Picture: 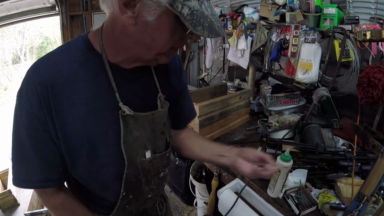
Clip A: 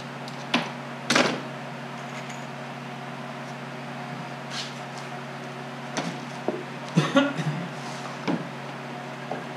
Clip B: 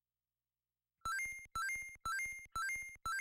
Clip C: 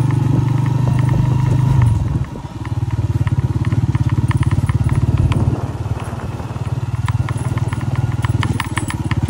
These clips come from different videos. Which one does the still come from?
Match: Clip A